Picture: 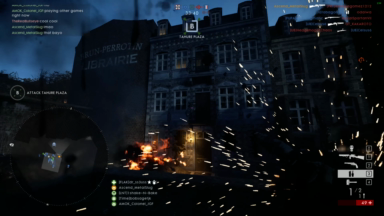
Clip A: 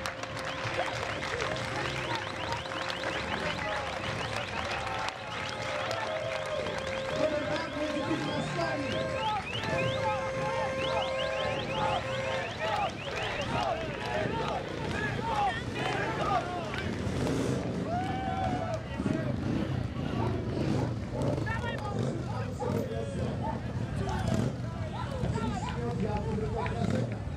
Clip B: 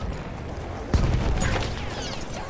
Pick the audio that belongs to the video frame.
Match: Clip B